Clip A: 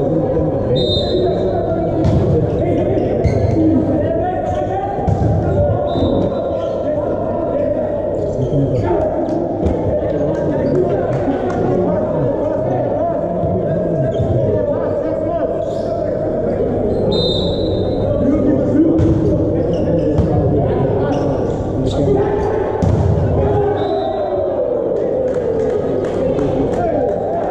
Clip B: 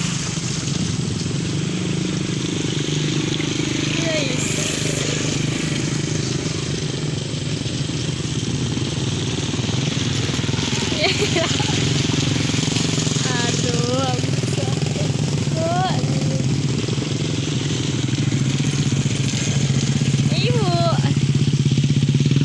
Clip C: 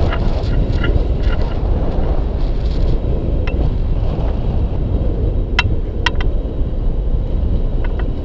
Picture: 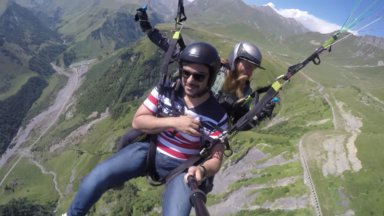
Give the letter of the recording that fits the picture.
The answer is C